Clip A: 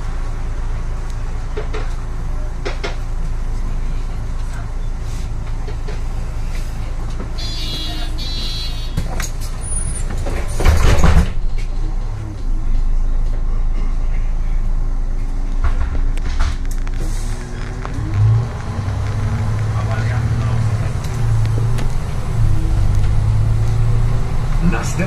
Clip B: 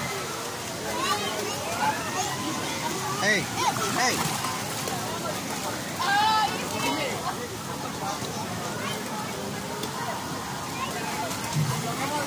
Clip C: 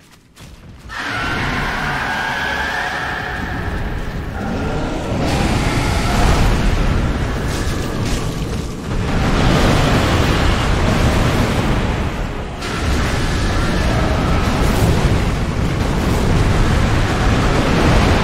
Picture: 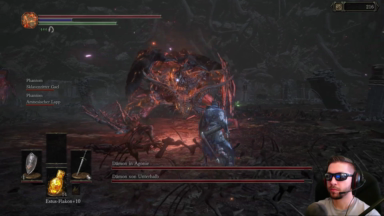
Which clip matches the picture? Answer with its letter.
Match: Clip C